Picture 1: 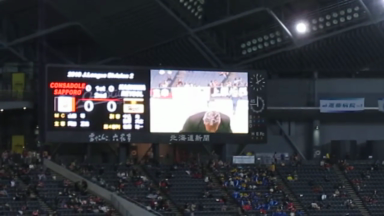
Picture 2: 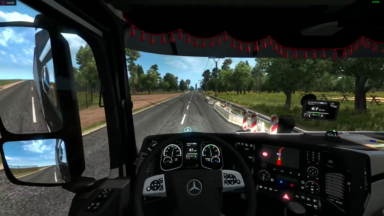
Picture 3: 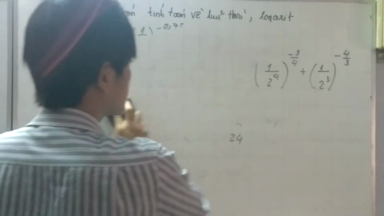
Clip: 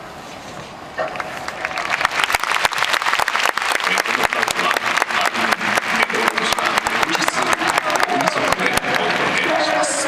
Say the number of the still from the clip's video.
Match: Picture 1